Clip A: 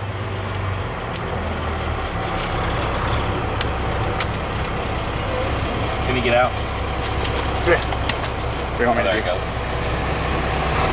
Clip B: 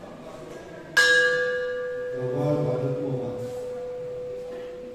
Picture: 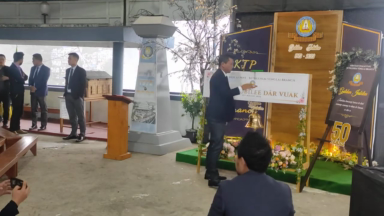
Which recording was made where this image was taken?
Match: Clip B